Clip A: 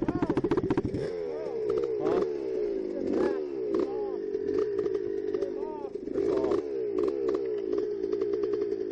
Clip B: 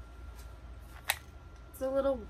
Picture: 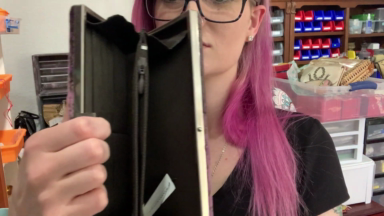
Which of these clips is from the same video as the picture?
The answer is B